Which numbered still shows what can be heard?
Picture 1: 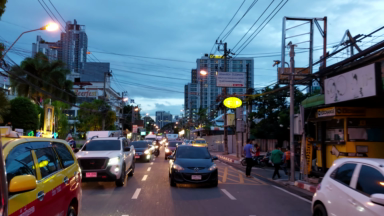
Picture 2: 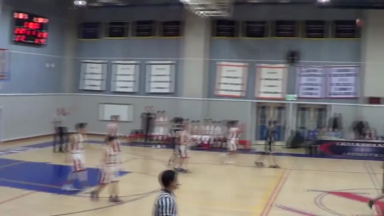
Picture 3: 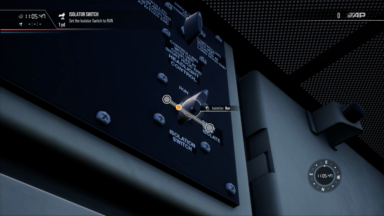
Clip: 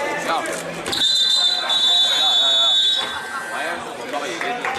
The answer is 2